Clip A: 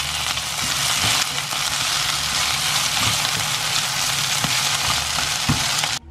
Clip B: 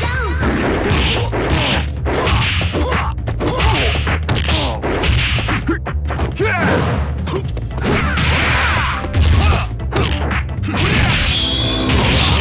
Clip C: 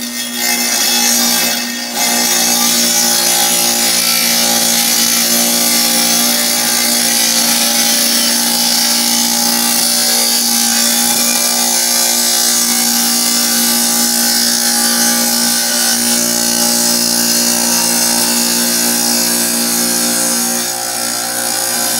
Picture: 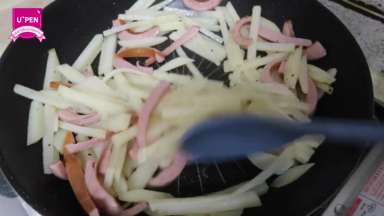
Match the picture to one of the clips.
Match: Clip A